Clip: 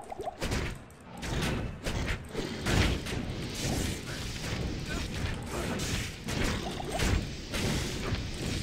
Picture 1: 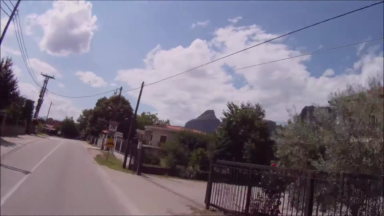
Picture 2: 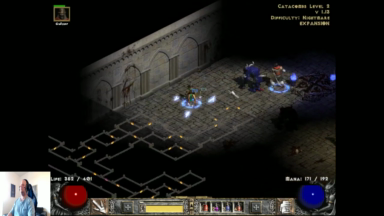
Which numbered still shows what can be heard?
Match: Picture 2